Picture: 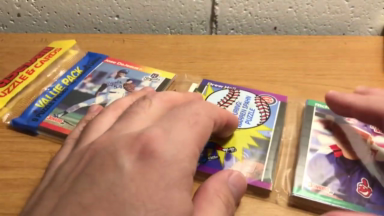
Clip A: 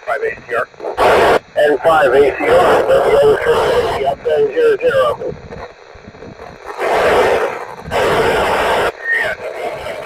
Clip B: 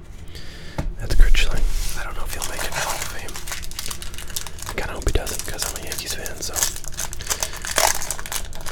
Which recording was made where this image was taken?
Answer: B